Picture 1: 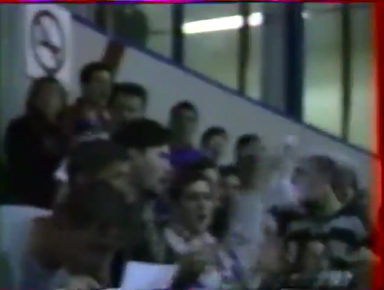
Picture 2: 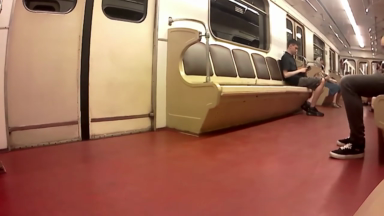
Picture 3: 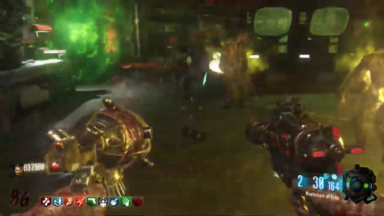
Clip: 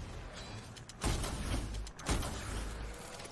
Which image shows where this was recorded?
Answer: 3